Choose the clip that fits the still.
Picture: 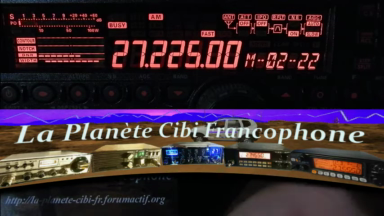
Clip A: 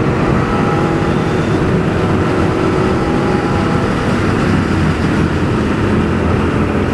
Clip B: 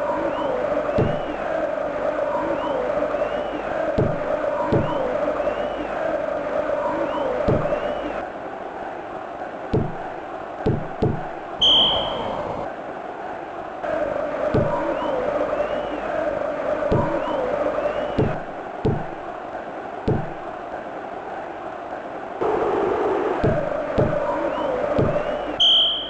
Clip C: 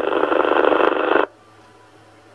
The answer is C